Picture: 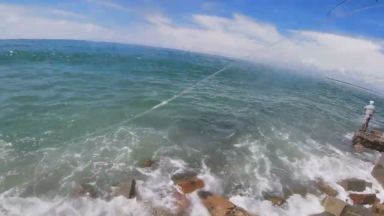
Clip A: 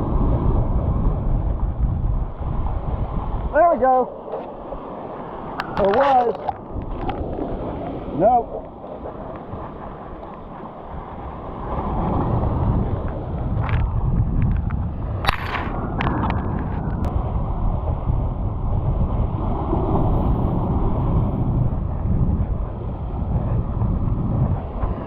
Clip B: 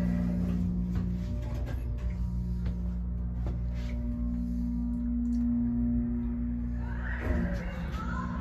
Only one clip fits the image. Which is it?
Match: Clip A